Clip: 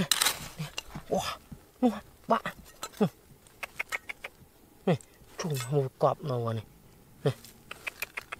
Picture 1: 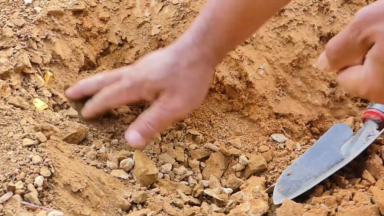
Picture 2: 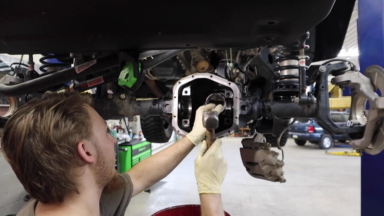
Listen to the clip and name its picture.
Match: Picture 1